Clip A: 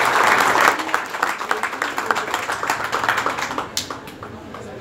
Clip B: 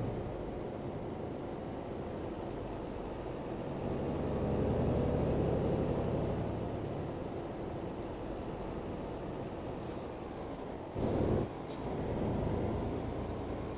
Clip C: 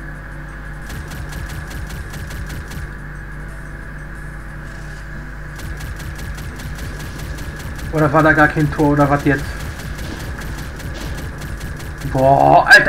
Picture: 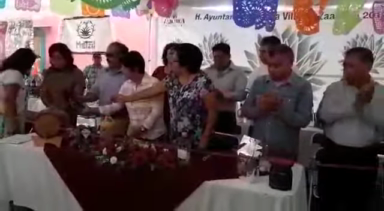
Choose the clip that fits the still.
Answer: A